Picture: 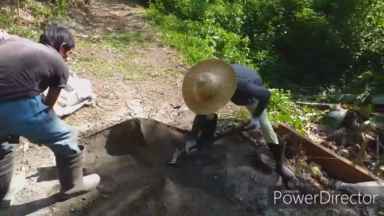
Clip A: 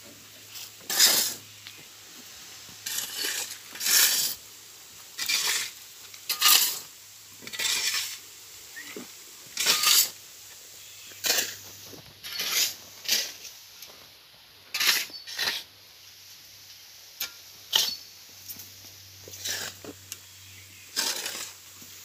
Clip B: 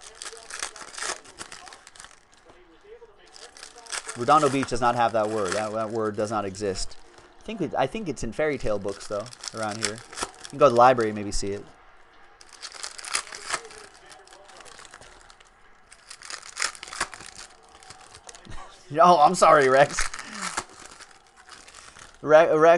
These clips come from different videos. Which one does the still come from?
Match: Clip A